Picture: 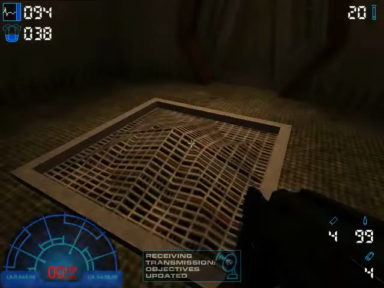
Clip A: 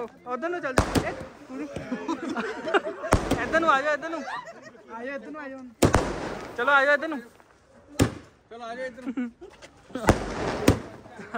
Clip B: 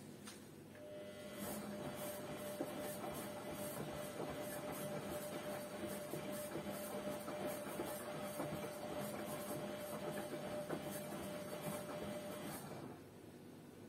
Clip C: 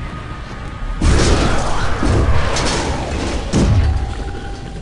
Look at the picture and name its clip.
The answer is C